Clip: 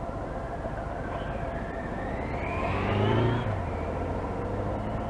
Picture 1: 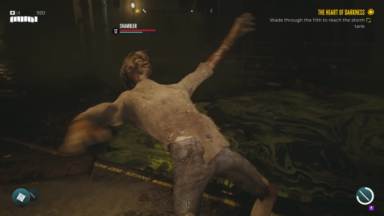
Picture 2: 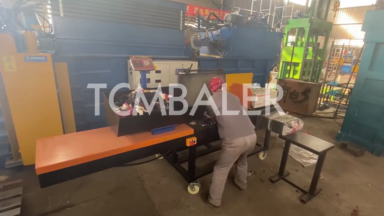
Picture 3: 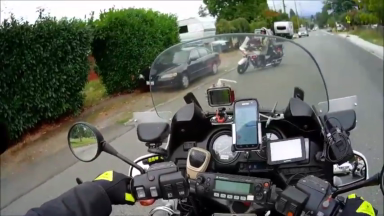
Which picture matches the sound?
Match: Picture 3